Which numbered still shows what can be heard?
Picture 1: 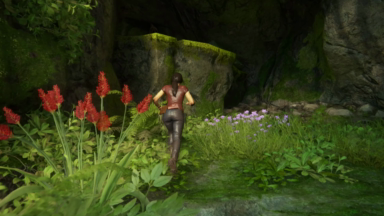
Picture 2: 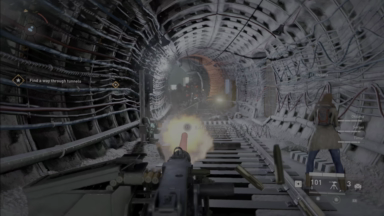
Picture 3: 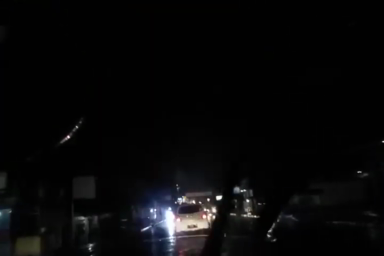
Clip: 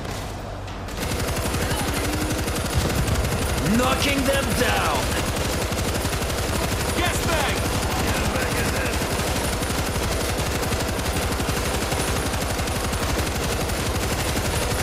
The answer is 2